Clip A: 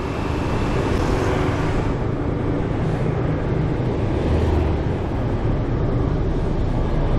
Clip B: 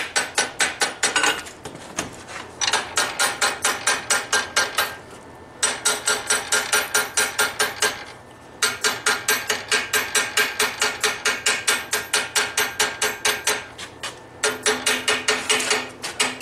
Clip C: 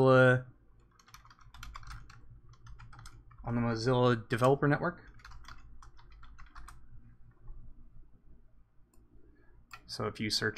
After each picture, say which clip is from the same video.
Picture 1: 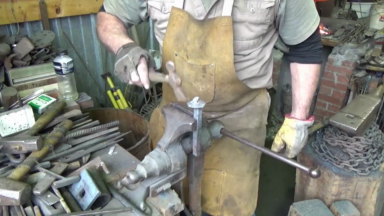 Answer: B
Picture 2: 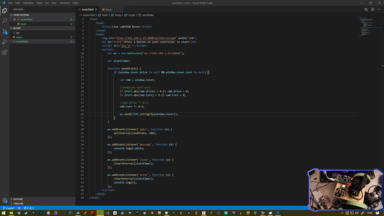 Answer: C